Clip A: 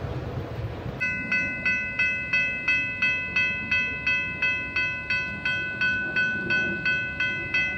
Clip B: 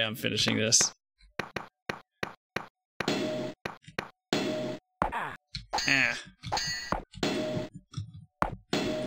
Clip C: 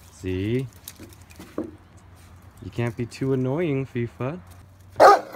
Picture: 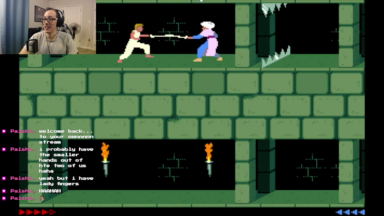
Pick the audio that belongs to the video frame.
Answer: B